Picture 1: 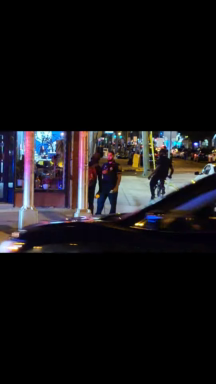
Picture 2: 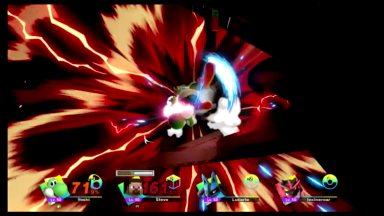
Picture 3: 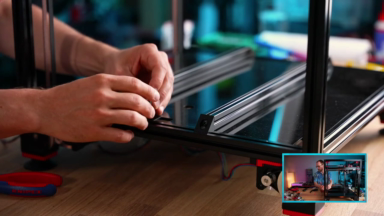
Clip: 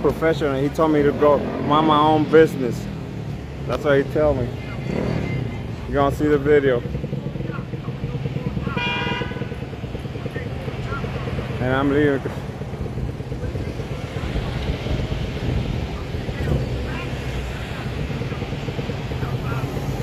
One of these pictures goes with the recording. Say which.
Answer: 1